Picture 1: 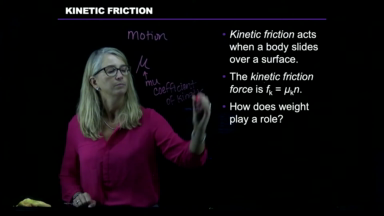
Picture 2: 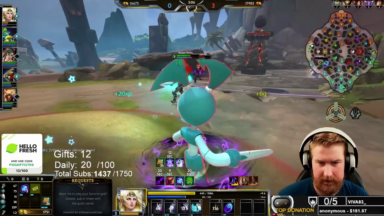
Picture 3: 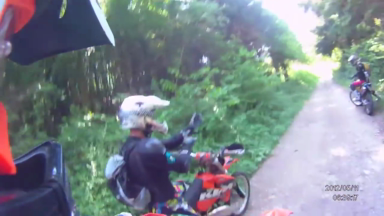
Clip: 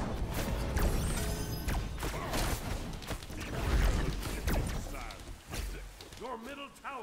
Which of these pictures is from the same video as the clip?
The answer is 2